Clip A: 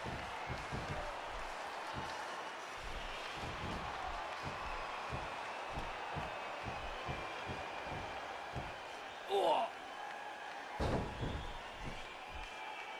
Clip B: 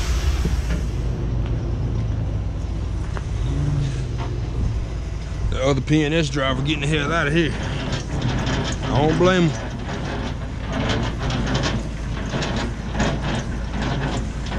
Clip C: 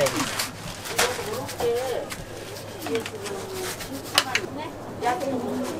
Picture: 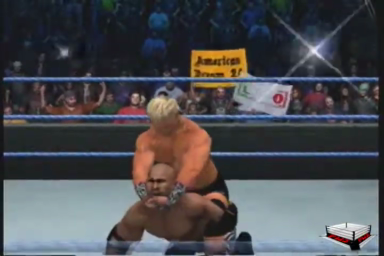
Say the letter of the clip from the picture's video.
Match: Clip A